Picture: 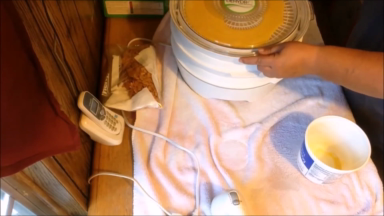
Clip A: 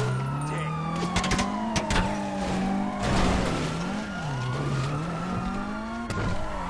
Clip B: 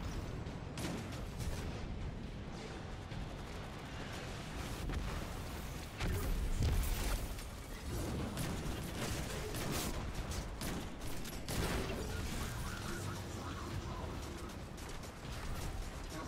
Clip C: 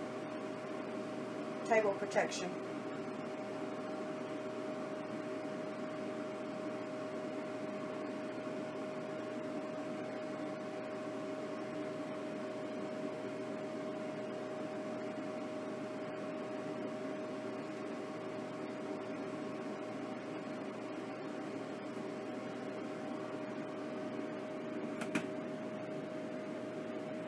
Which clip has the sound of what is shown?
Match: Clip C